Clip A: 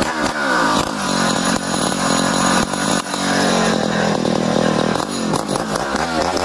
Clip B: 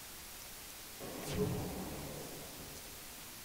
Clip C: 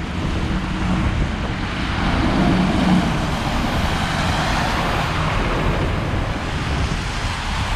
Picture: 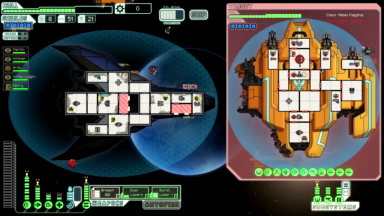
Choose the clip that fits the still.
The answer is B